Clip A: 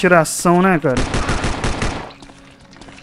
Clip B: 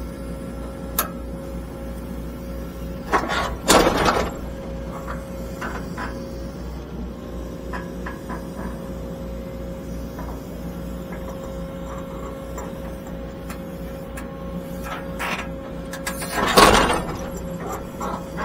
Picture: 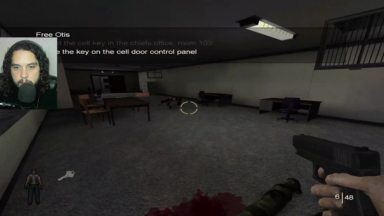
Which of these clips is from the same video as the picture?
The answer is A